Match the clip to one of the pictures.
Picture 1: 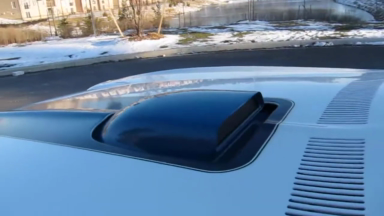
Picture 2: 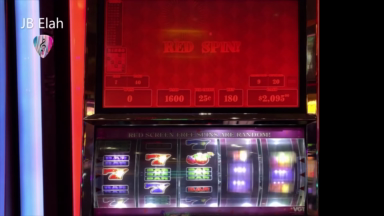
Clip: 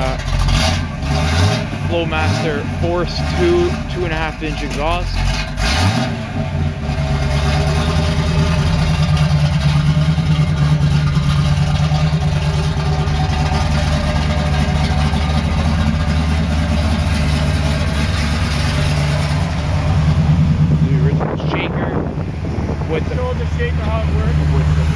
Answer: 1